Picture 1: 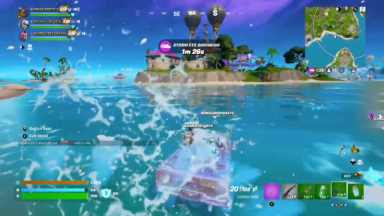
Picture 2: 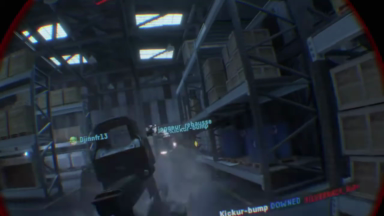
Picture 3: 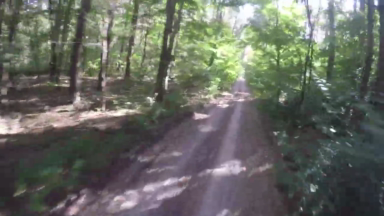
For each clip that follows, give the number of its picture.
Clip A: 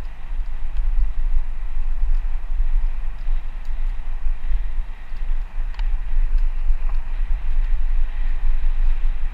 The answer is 3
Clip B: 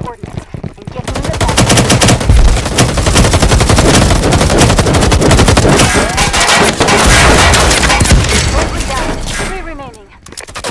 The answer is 2